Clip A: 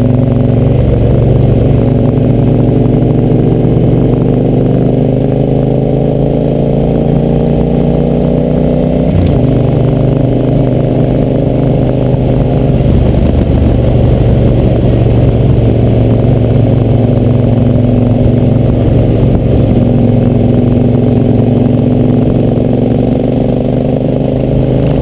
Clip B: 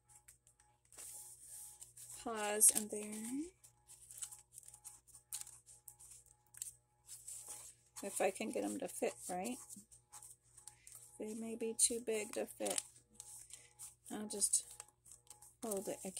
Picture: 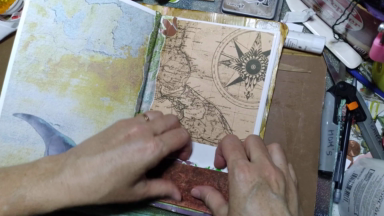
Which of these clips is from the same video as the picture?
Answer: B